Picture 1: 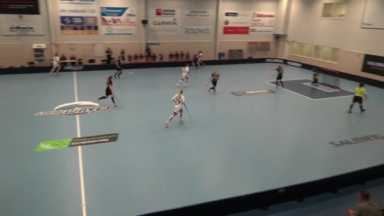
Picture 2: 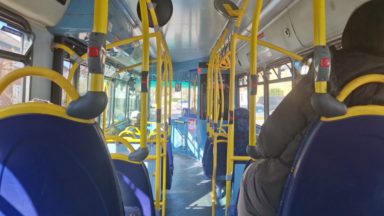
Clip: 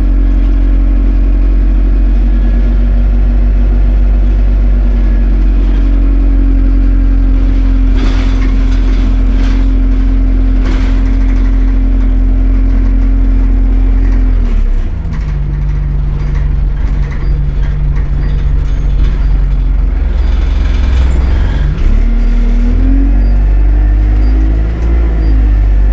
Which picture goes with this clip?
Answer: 2